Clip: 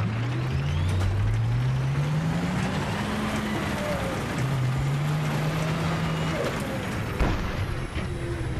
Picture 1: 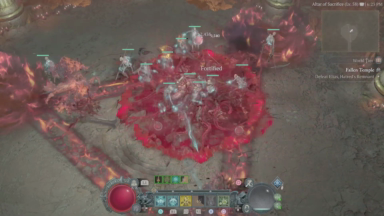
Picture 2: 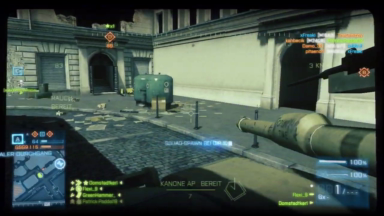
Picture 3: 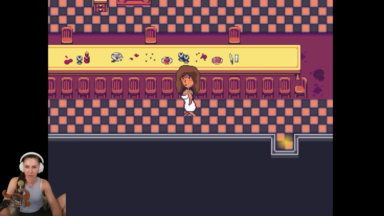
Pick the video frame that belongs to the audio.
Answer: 2